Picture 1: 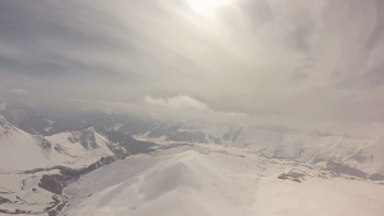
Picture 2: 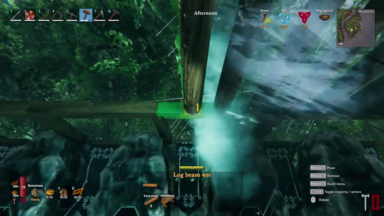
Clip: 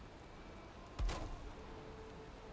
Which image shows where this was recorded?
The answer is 2